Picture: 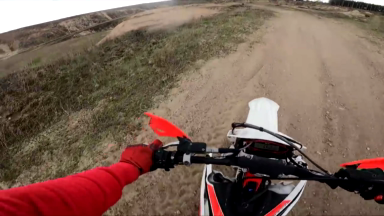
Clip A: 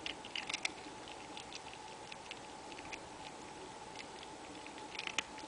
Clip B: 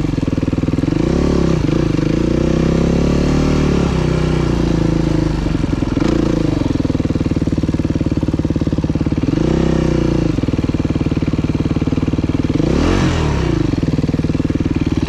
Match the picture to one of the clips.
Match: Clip B